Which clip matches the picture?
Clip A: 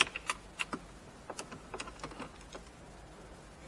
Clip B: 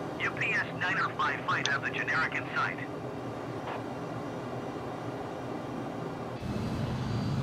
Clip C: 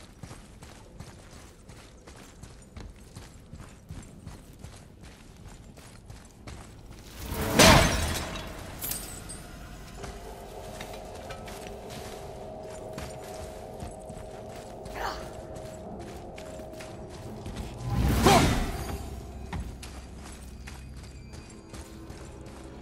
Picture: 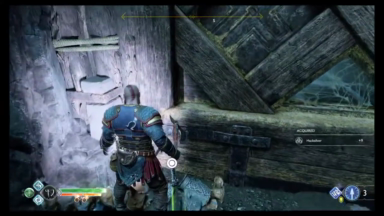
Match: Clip C